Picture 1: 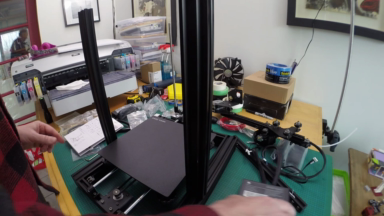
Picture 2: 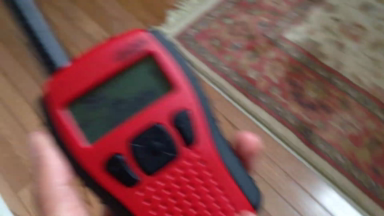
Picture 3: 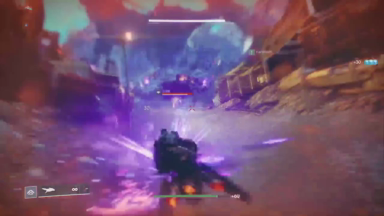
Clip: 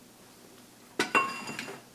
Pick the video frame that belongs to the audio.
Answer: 1